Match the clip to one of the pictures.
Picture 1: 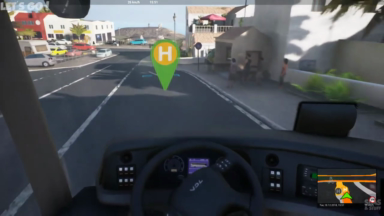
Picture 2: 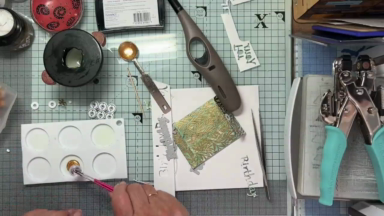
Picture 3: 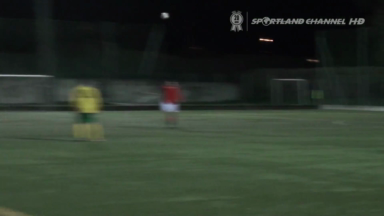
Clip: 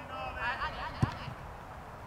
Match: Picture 3